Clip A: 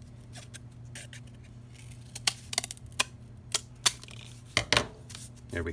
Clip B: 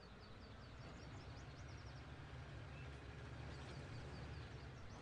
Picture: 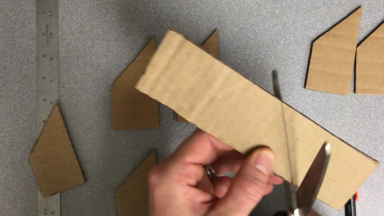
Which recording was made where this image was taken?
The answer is A